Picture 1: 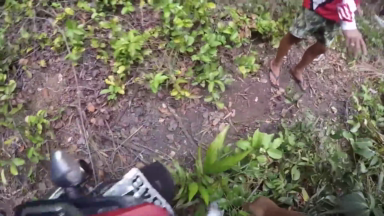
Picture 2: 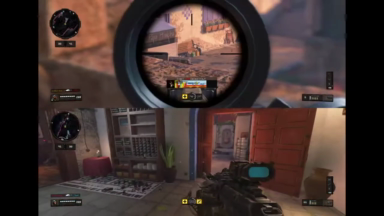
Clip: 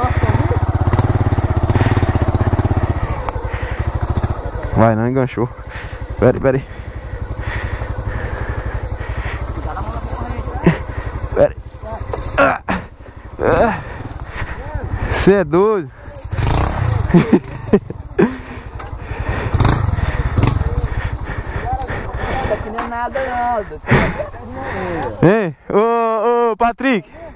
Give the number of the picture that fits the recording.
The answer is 1